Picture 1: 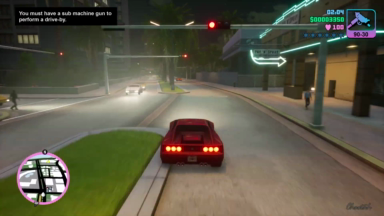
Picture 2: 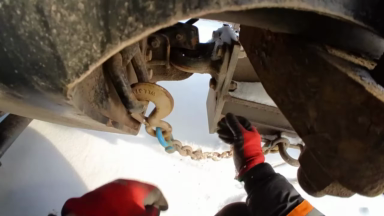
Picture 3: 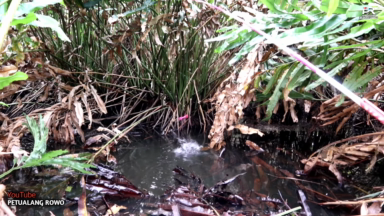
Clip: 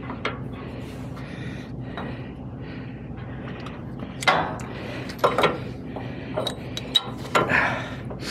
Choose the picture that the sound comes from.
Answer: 2